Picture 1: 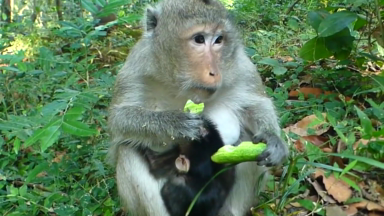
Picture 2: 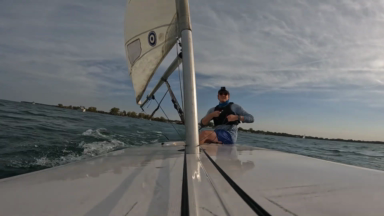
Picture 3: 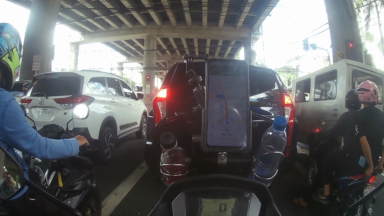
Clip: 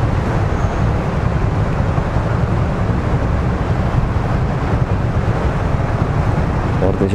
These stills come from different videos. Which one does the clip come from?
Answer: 3